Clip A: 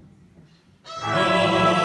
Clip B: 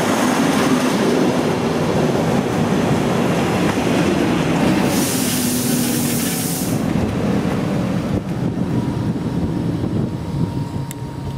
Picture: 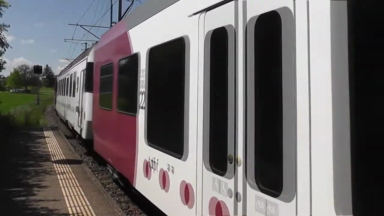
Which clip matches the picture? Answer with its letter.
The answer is B